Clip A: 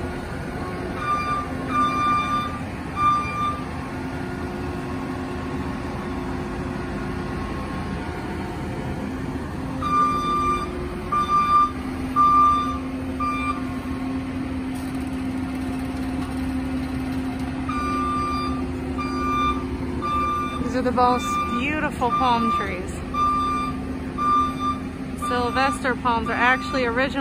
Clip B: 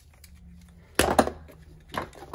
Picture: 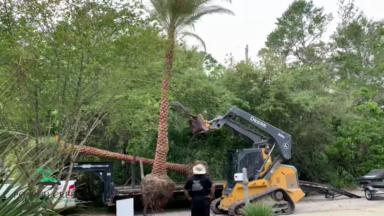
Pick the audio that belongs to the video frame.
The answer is A